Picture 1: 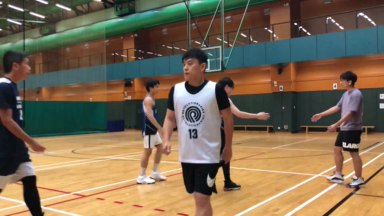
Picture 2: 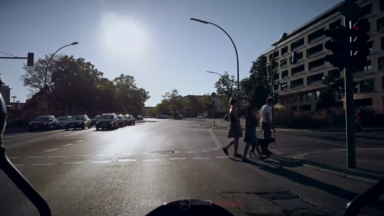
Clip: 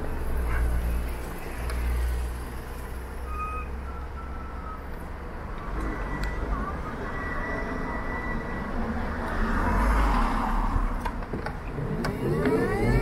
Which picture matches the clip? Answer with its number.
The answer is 2